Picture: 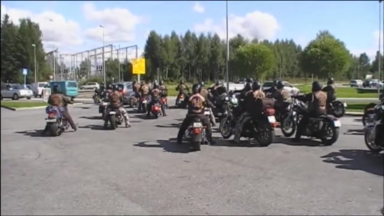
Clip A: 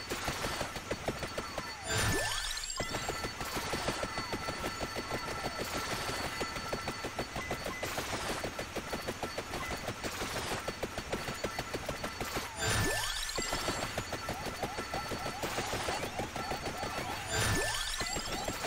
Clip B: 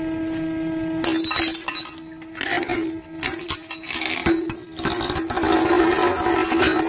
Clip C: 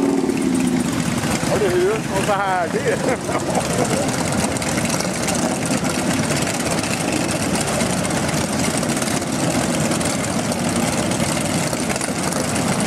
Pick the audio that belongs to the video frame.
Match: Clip C